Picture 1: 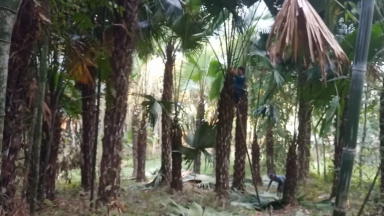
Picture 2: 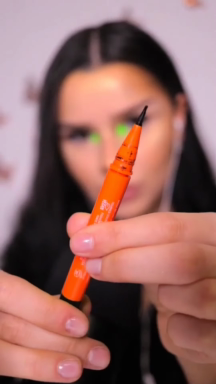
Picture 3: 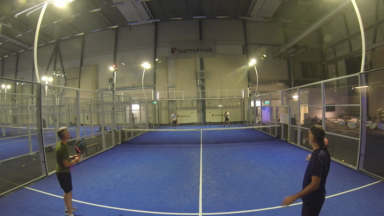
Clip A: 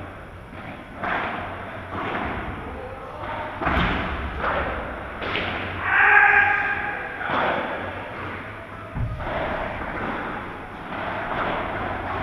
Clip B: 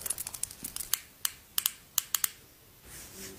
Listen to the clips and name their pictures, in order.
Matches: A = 3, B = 2